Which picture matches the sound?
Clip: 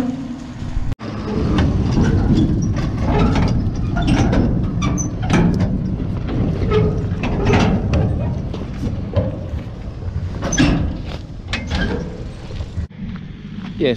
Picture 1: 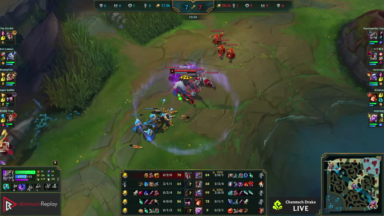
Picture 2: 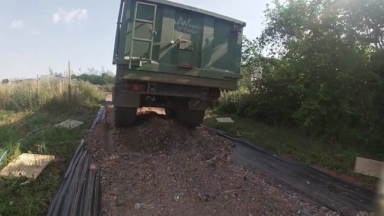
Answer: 2